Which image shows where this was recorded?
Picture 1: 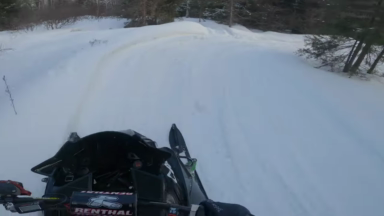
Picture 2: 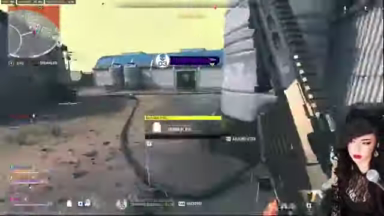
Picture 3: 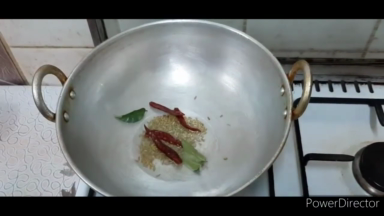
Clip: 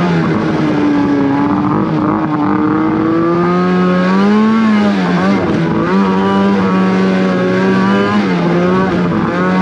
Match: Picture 1